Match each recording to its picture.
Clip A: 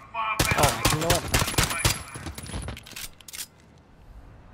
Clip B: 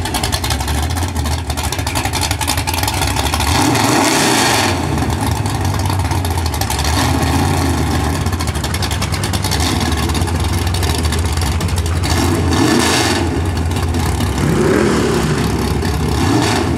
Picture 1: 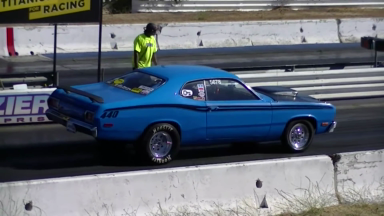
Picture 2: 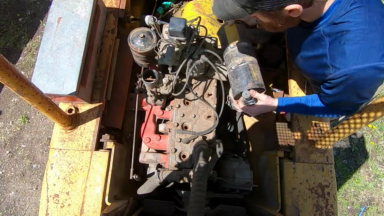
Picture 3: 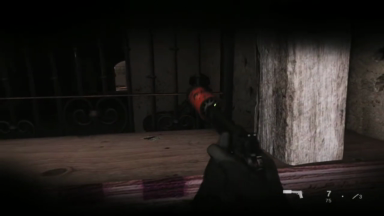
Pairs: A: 3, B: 1